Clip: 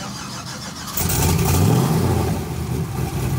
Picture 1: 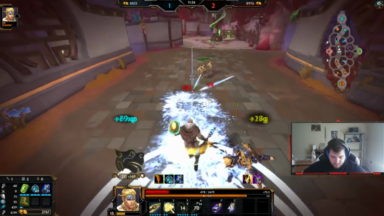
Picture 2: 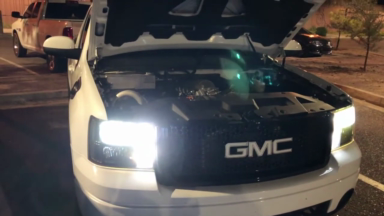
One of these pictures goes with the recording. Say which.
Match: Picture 2